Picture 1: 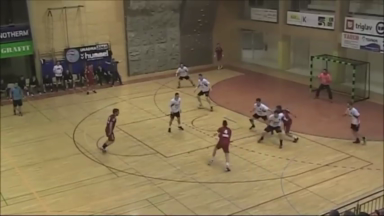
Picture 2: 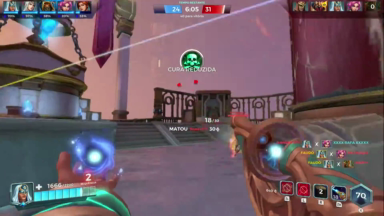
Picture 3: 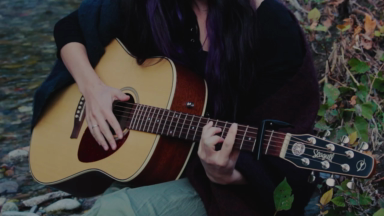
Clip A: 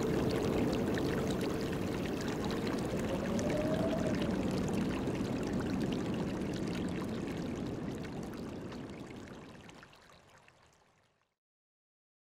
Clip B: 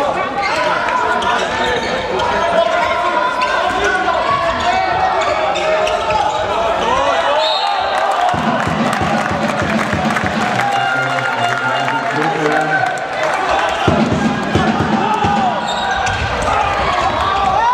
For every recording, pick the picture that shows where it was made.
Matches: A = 3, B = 1